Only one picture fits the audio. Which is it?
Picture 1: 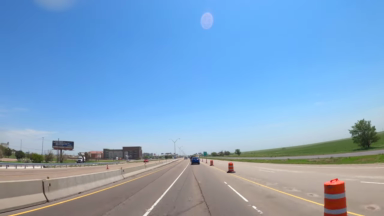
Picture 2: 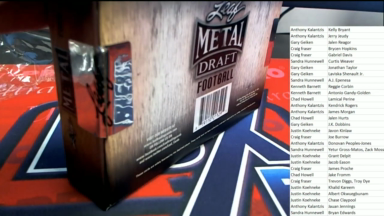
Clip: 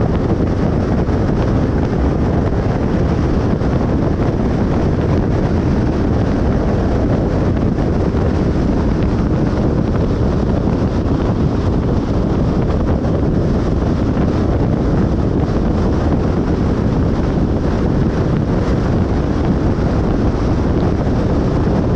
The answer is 1